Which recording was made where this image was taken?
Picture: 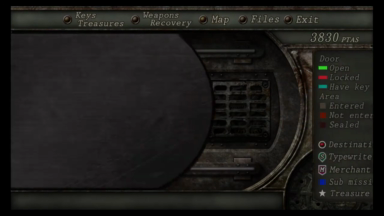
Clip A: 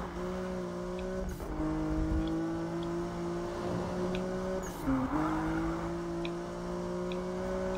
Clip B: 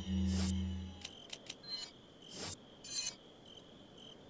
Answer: B